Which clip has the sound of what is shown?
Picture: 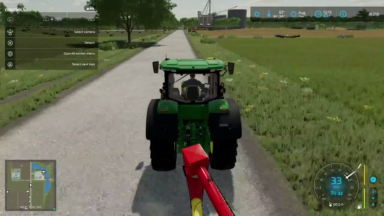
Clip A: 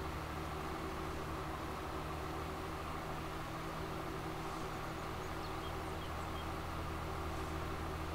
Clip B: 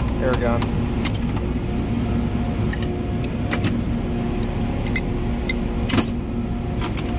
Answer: A